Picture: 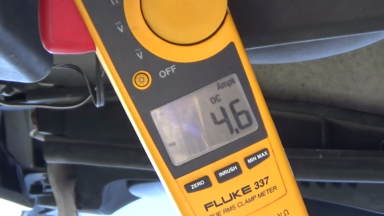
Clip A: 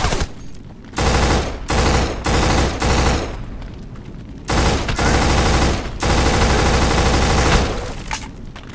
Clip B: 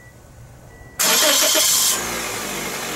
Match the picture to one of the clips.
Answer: B